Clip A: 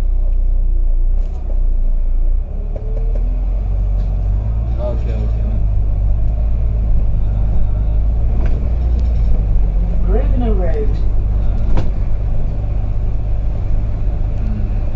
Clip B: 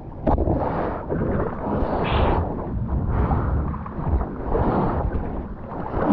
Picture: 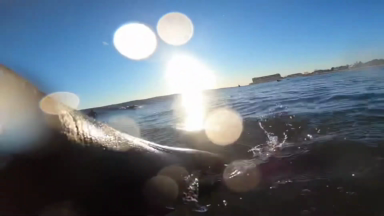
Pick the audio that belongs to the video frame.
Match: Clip B